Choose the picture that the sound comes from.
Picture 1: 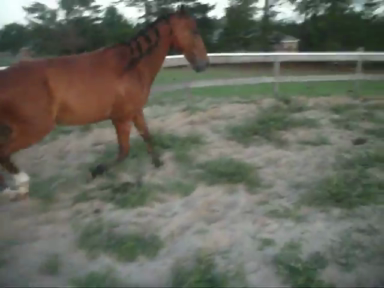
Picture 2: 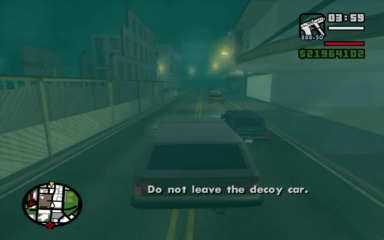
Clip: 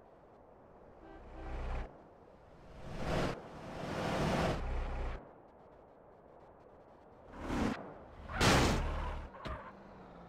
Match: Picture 2